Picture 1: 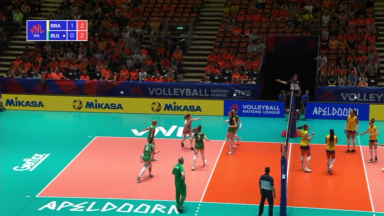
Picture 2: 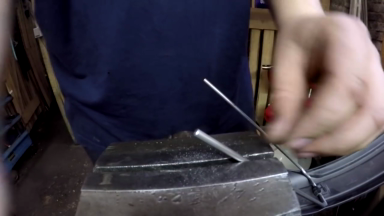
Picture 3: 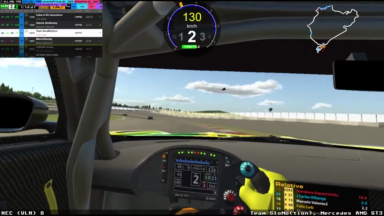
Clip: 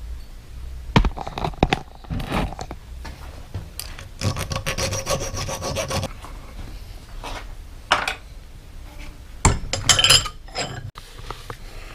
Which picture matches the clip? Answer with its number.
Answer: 2